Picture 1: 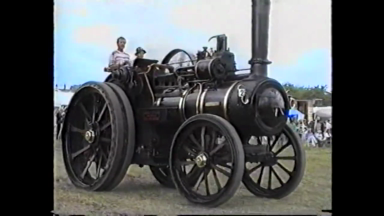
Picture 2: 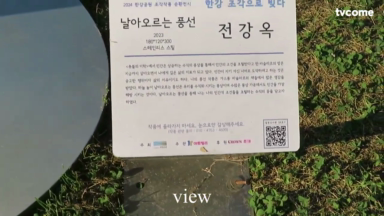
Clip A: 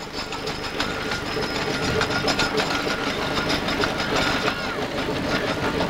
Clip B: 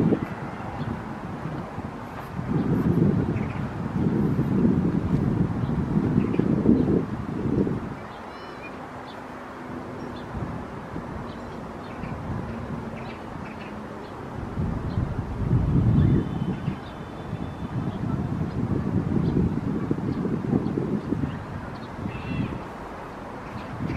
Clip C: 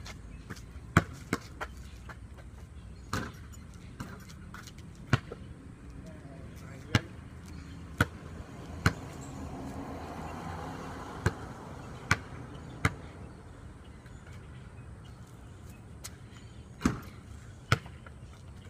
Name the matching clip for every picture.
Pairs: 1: A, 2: B